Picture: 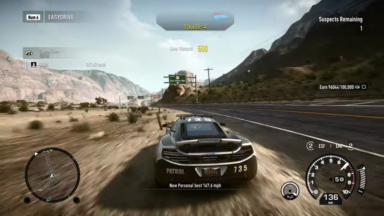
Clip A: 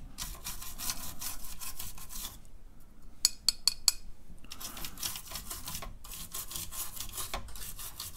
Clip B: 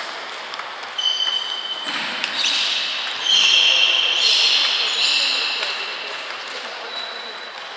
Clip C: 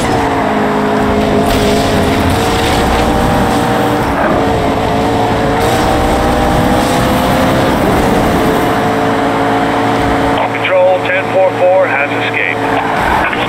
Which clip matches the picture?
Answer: C